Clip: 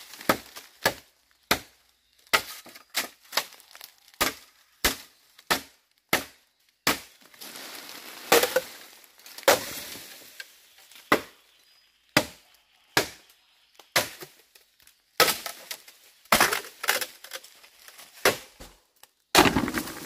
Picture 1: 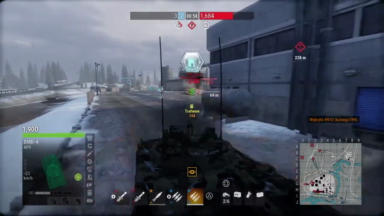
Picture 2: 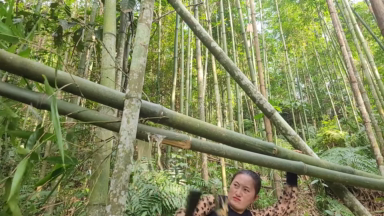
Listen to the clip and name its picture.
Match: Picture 2